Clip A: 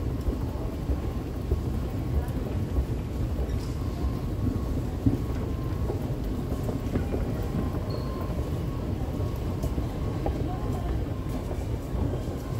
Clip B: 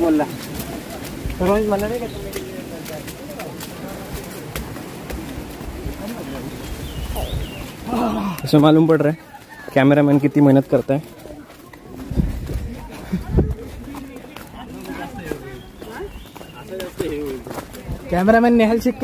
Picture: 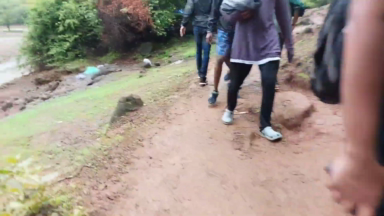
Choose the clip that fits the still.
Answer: B